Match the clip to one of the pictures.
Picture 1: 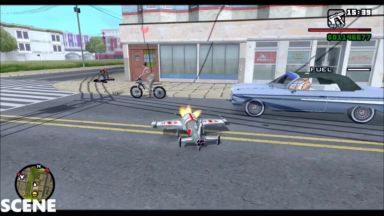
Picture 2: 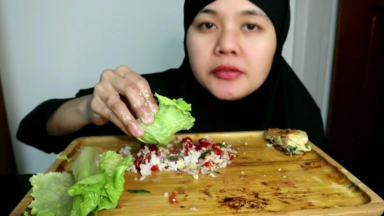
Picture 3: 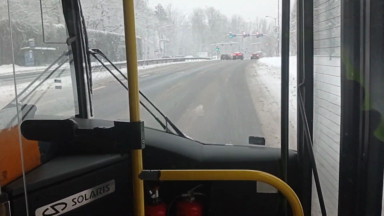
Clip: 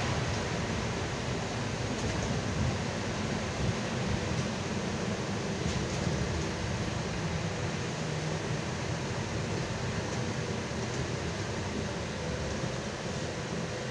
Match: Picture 3